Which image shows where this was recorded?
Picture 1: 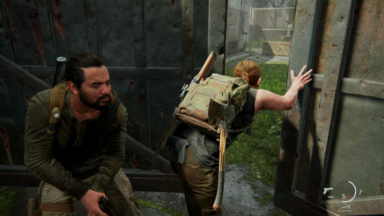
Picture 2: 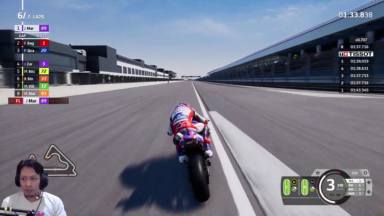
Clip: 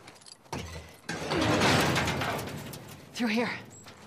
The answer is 1